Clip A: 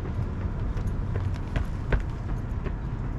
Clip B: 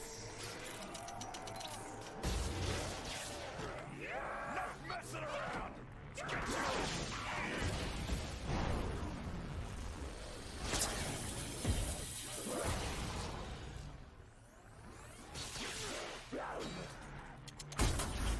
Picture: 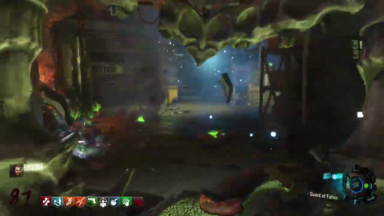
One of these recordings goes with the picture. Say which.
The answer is B